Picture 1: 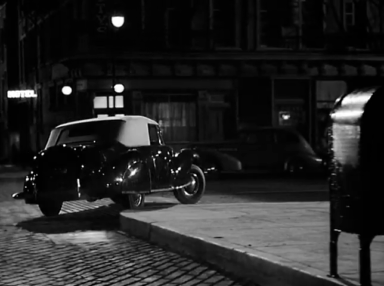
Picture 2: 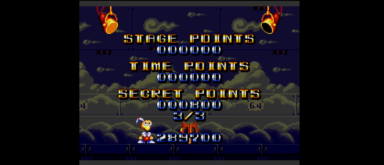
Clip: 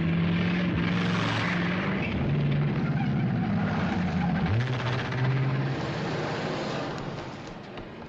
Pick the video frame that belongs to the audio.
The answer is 1